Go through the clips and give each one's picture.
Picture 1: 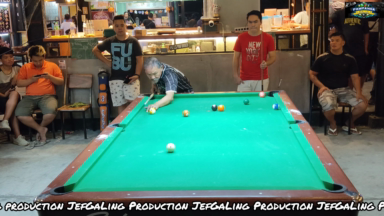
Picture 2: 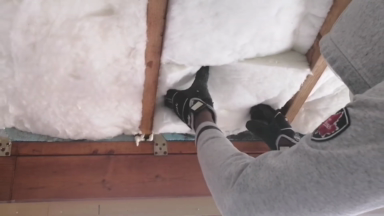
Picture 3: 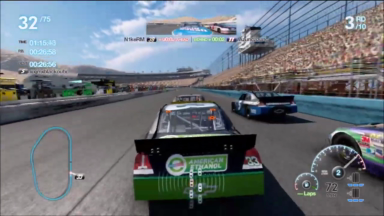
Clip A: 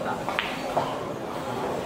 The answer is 1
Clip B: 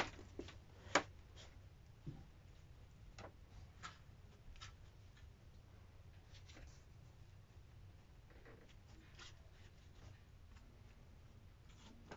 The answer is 2